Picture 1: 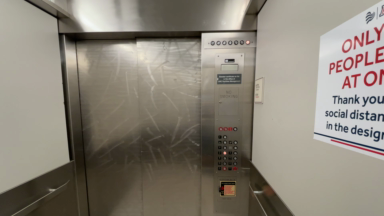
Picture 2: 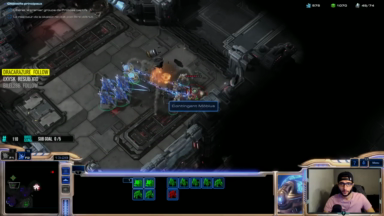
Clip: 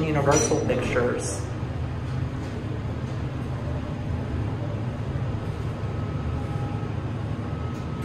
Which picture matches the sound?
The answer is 1